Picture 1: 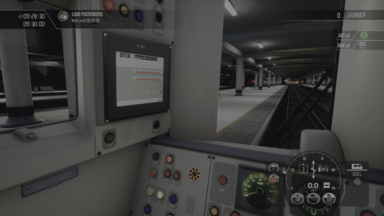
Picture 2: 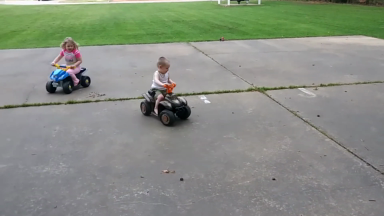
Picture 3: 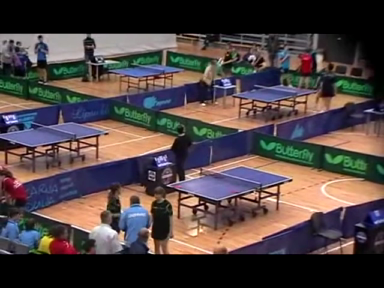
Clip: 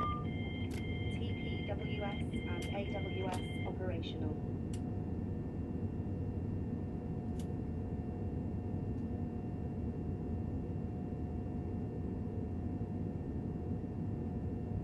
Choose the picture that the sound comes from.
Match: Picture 1